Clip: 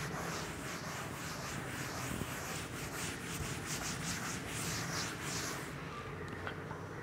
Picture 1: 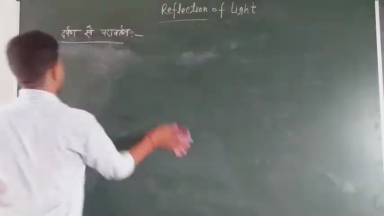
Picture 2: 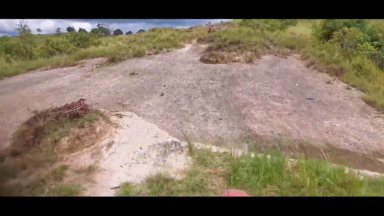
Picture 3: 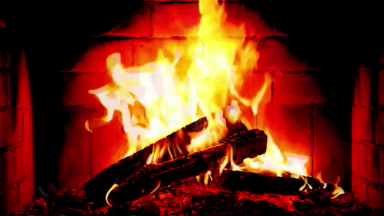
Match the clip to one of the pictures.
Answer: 1